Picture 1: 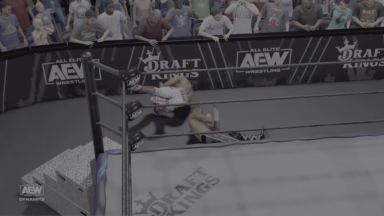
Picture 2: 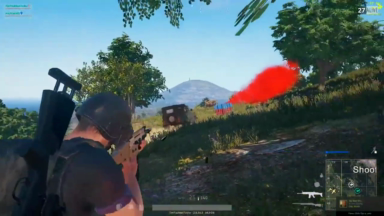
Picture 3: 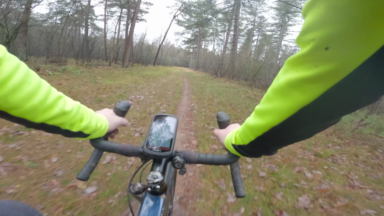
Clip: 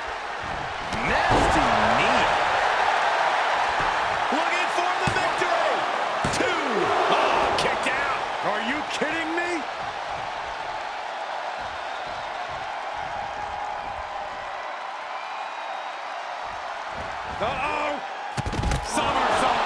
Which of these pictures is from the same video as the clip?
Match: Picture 1